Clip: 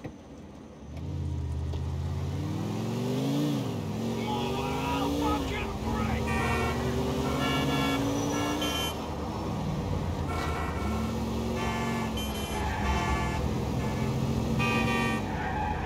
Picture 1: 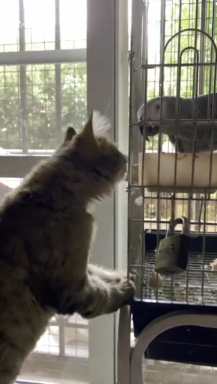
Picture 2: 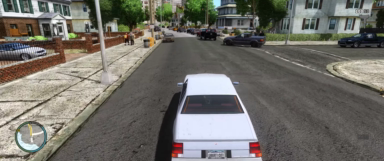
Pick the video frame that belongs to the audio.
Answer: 2